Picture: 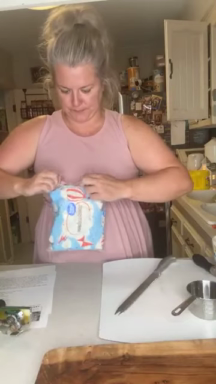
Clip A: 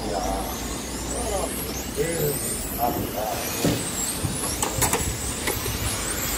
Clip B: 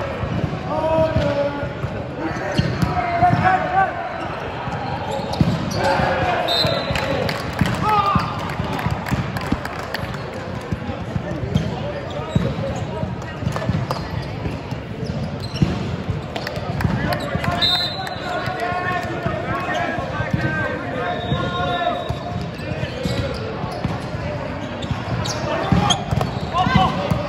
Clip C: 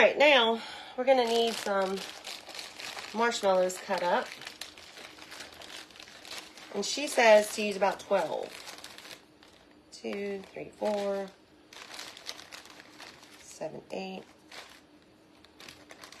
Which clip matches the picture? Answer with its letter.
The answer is C